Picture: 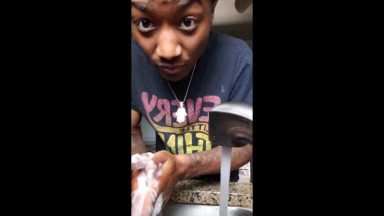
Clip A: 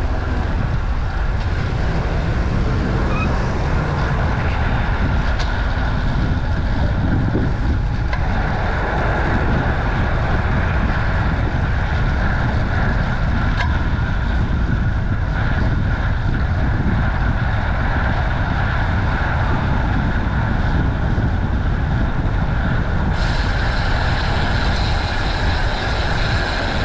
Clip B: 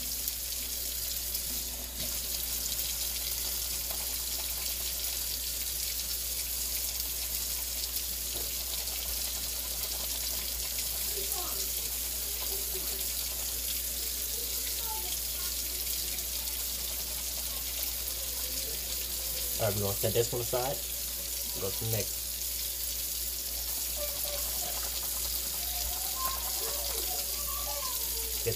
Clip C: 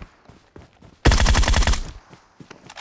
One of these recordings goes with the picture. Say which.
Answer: B